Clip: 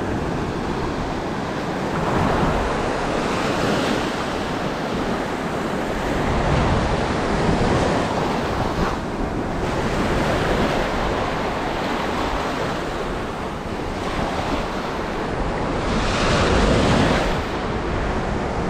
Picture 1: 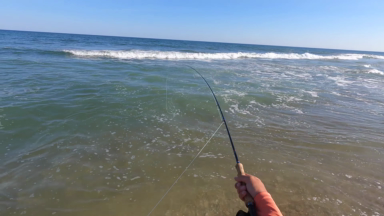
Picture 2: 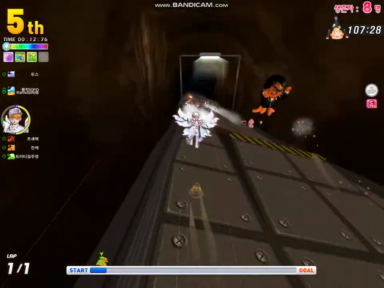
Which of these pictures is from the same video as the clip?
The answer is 1